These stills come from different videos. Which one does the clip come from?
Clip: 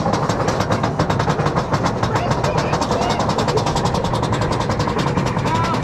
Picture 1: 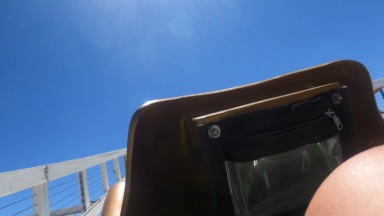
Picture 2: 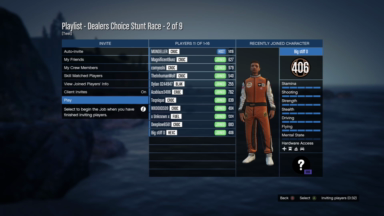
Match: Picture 1